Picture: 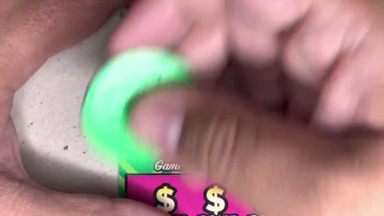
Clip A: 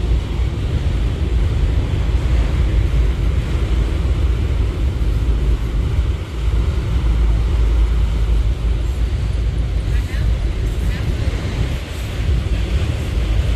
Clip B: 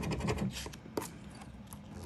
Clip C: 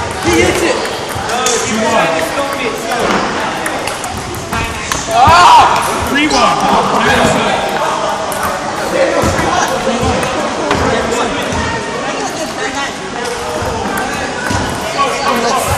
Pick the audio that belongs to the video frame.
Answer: B